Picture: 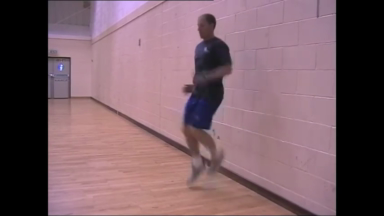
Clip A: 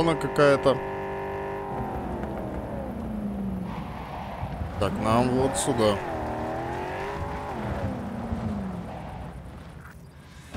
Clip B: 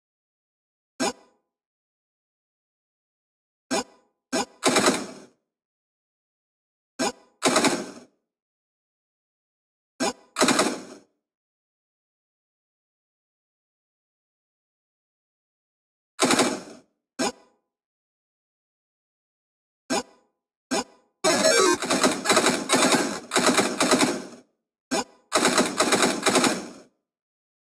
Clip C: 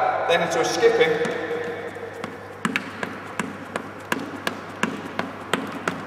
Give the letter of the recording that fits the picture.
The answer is C